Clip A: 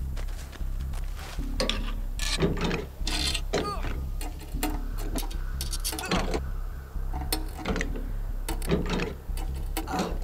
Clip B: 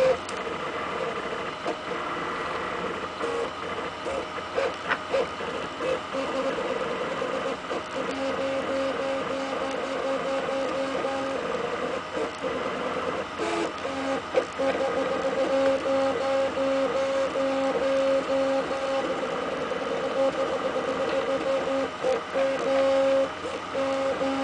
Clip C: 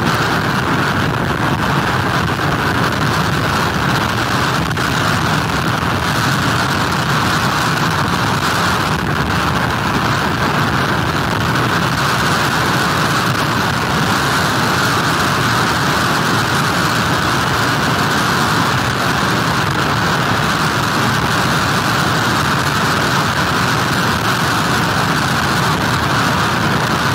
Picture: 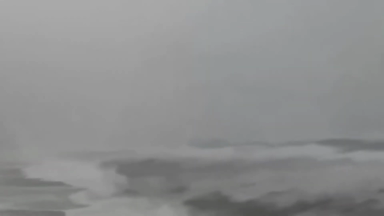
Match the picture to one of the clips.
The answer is C